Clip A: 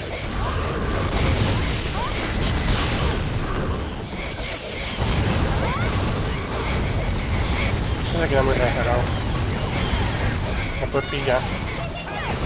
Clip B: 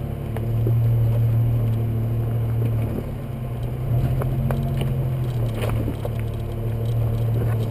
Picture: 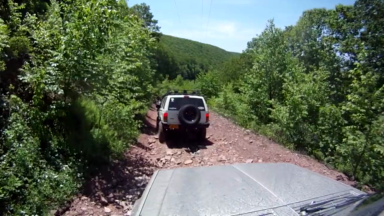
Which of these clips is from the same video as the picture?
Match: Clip B